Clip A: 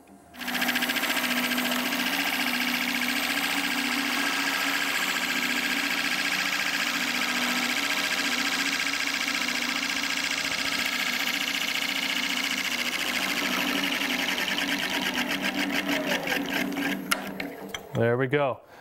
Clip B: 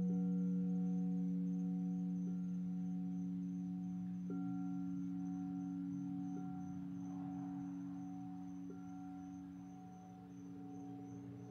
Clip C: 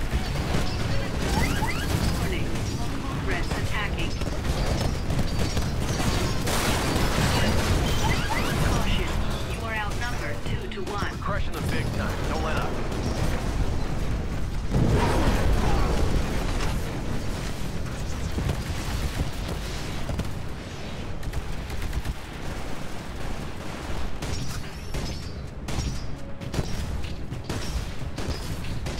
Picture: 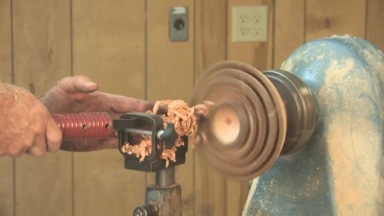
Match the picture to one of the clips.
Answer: A